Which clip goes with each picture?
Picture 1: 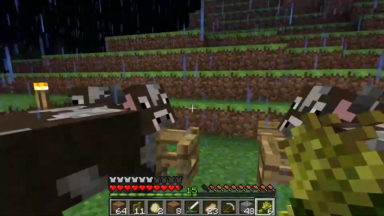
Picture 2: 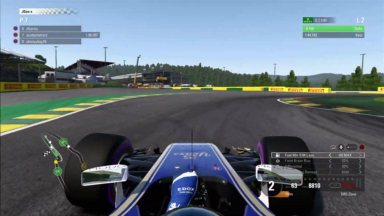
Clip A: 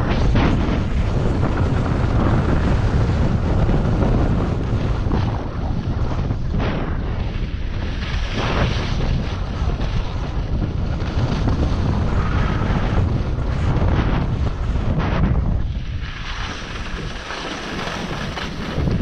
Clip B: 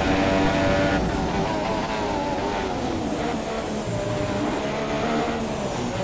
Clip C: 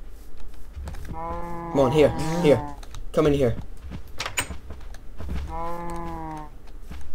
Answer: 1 C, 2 B